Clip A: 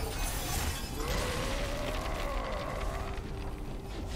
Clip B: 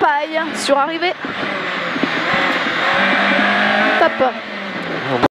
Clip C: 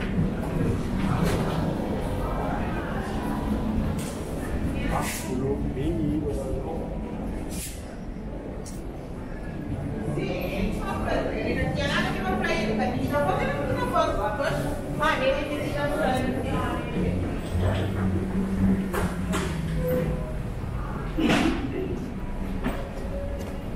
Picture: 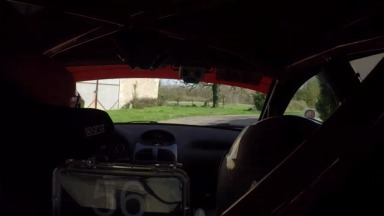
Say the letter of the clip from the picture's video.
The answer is B